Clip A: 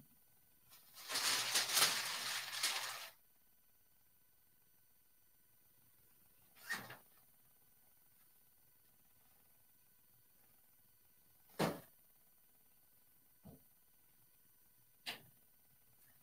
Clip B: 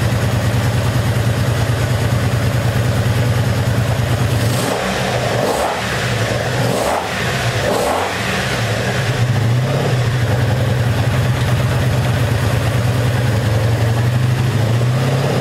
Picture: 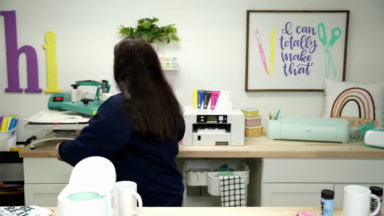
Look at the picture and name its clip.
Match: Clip A